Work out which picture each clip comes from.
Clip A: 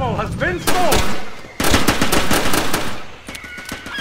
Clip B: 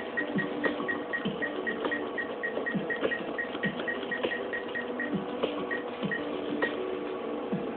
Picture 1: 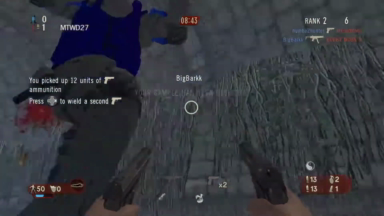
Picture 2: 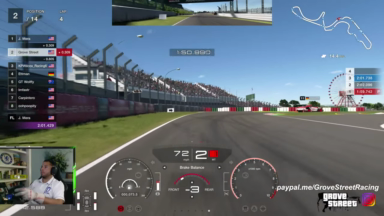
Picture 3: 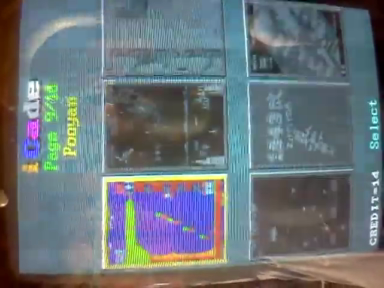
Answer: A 1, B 3